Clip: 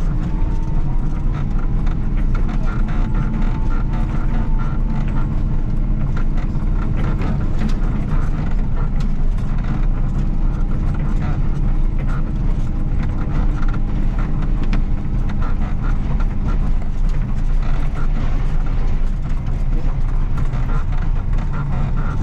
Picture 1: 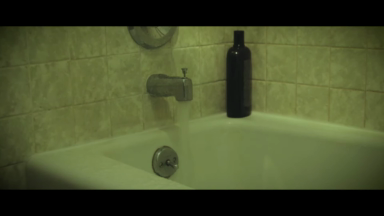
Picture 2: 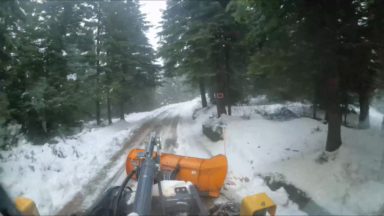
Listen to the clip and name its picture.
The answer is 2